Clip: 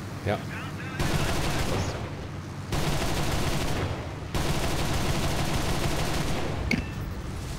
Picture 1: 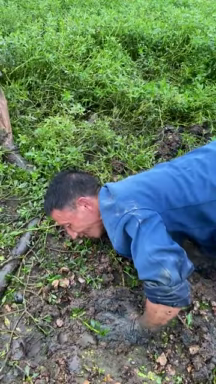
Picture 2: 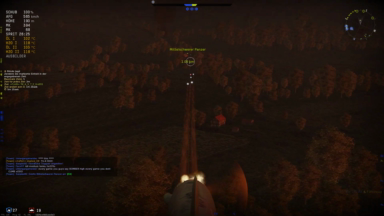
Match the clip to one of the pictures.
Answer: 2